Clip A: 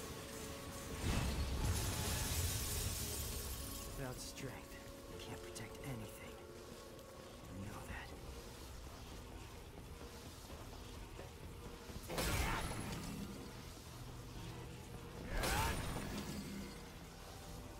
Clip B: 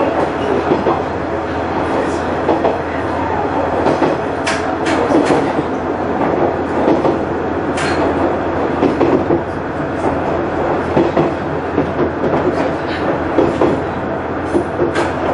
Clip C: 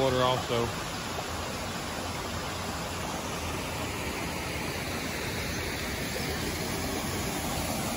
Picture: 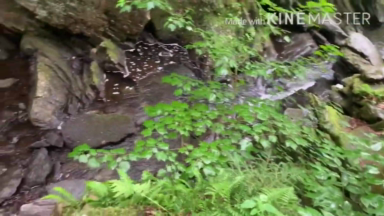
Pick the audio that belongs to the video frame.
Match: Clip C